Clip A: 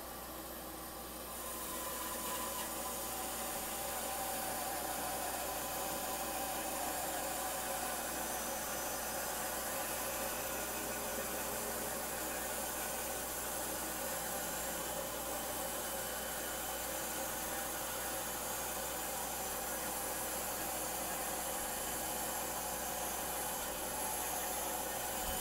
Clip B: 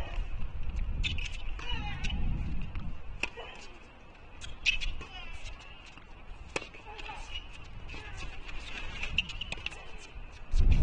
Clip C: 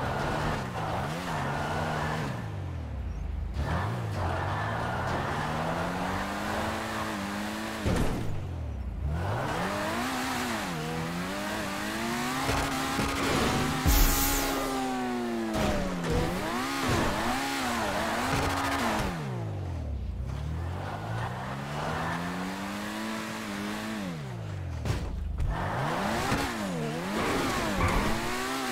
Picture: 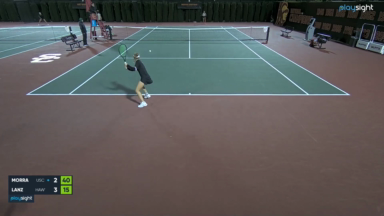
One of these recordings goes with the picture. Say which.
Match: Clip B